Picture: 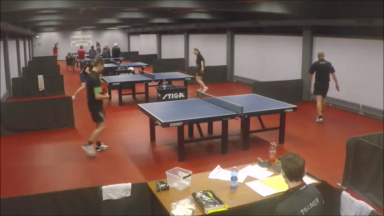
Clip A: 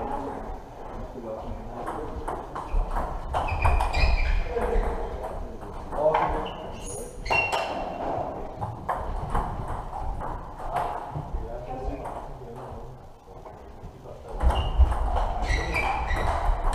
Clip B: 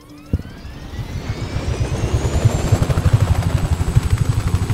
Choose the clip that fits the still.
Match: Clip A